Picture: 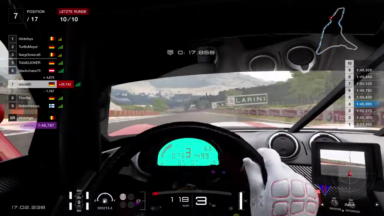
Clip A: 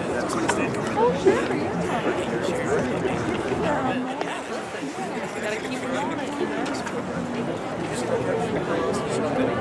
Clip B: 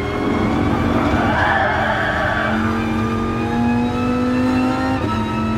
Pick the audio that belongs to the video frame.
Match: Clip B